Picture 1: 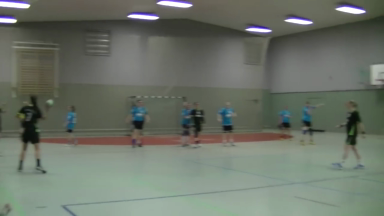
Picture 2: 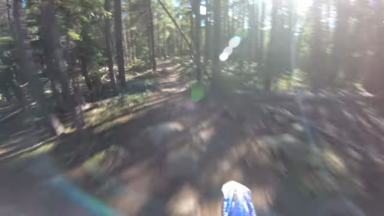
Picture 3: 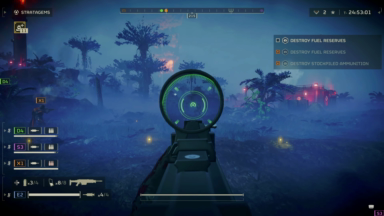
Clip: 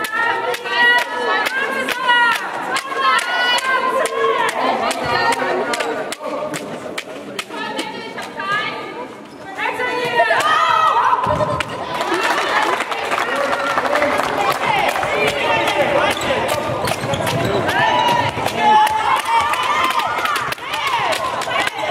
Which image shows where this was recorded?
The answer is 1